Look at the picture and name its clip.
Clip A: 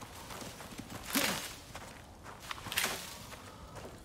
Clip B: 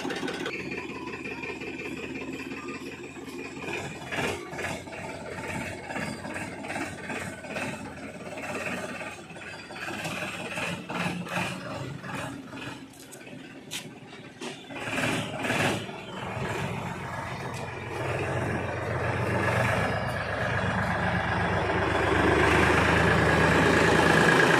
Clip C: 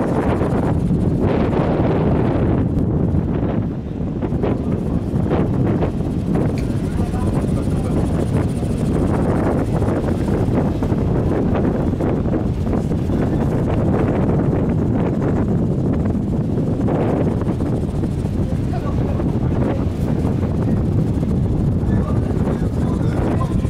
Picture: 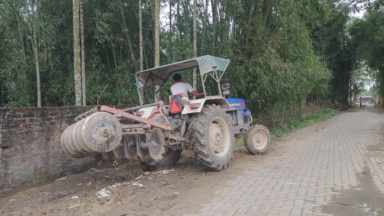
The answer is B